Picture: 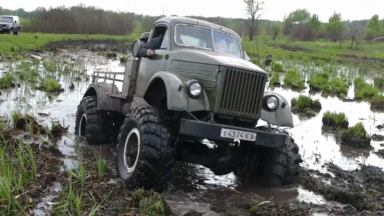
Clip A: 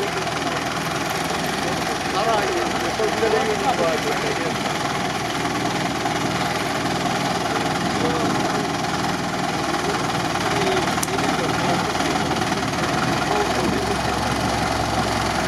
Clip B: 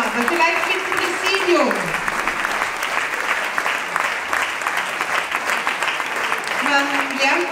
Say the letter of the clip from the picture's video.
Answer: A